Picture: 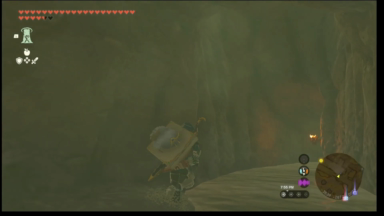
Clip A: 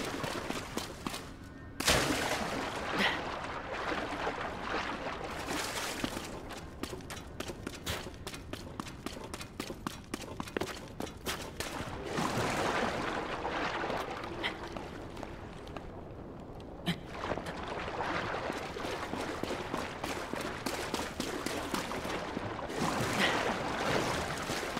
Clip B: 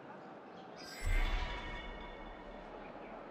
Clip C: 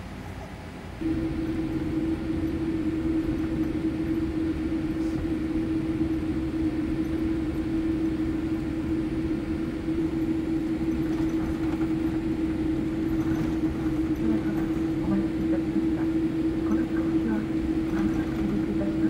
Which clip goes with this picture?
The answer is A